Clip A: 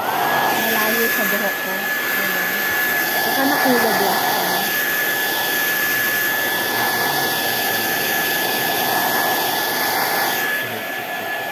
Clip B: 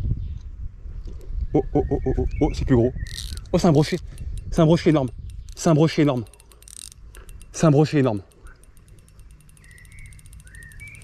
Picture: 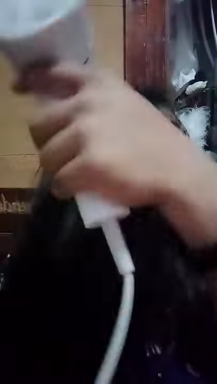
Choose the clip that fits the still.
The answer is A